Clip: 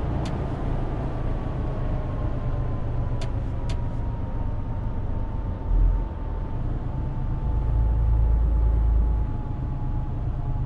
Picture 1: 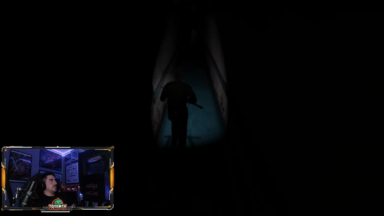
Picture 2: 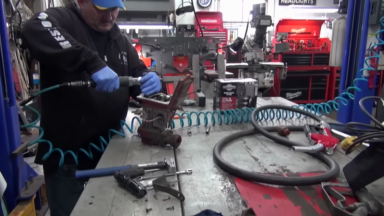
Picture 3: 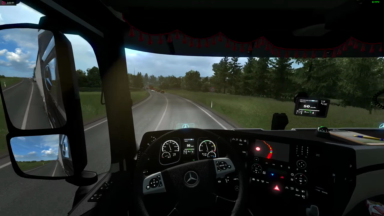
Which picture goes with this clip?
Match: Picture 3